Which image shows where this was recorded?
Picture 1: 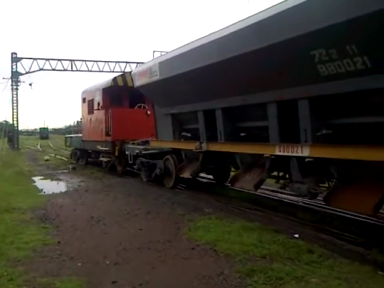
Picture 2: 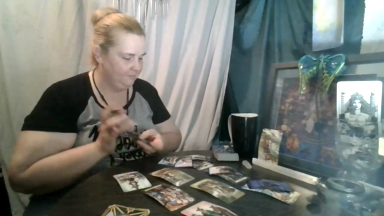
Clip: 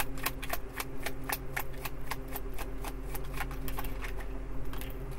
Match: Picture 2